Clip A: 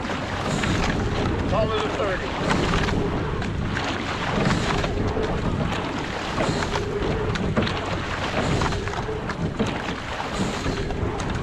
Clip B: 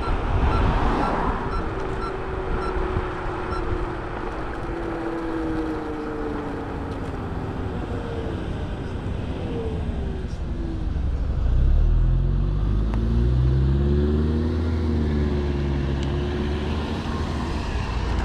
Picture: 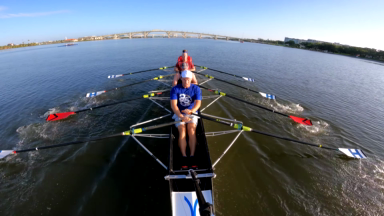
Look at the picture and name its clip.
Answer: A